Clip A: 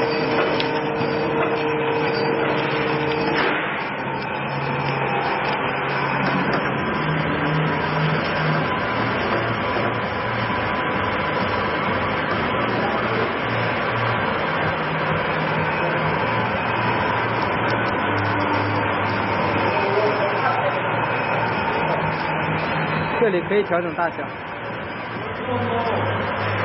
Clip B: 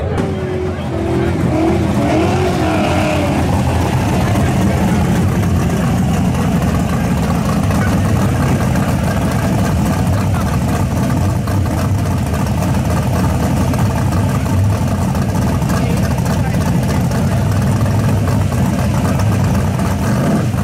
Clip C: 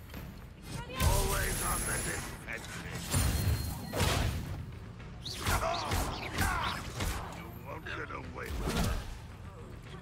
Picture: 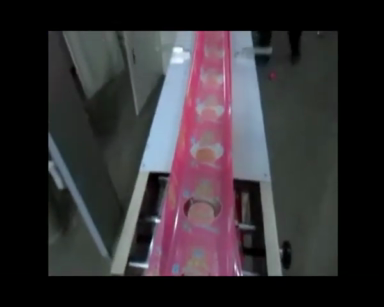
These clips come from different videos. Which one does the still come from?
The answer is A